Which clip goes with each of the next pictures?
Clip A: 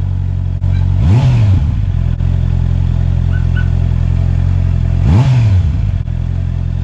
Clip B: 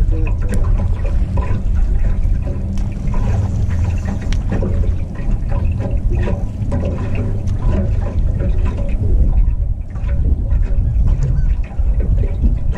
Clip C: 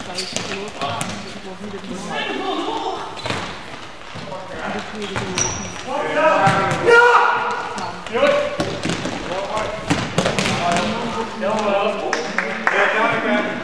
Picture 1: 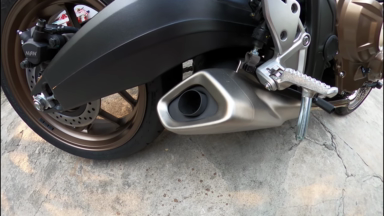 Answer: A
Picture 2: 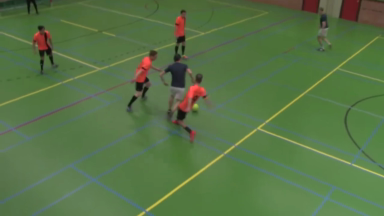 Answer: C